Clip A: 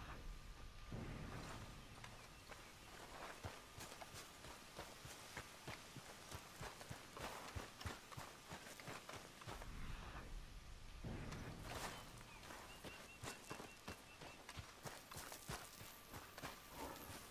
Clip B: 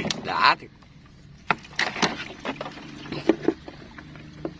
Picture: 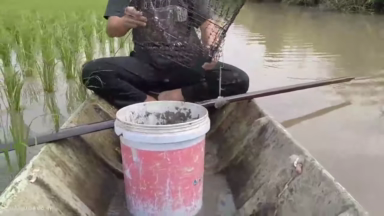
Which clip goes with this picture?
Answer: B